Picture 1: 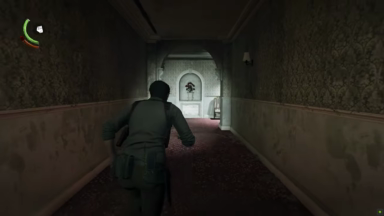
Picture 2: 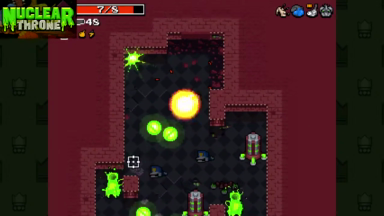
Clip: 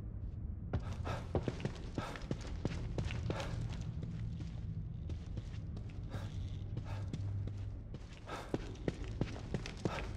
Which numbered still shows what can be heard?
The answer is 1